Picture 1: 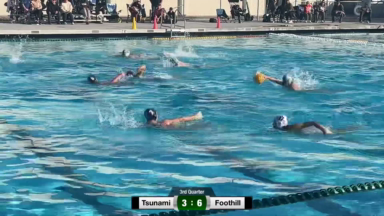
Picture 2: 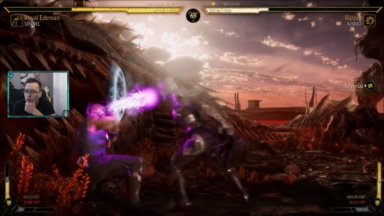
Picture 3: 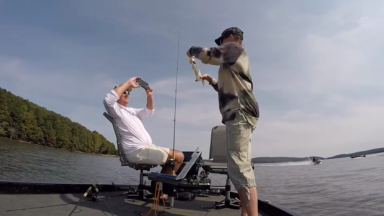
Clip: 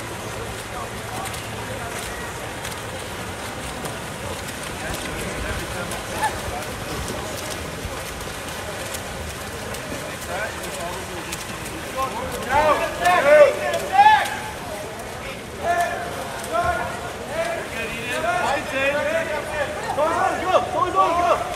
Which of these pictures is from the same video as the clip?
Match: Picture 1